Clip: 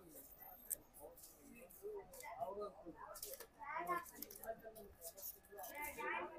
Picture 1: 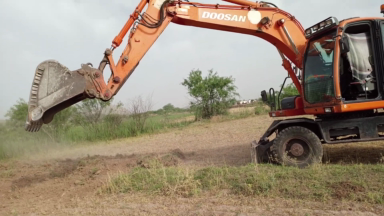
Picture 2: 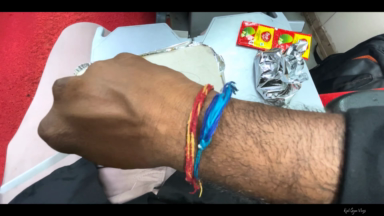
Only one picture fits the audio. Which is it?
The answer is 2